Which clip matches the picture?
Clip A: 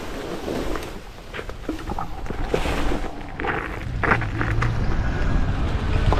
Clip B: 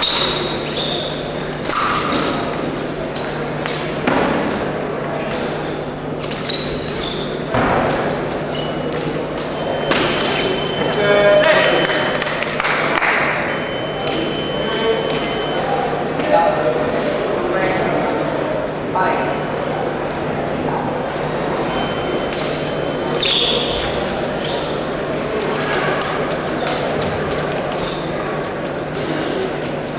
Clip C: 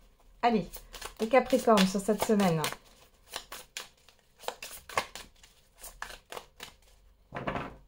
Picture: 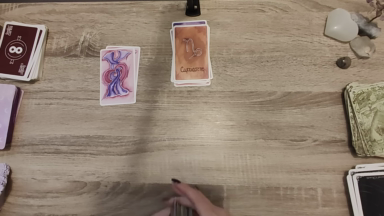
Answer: C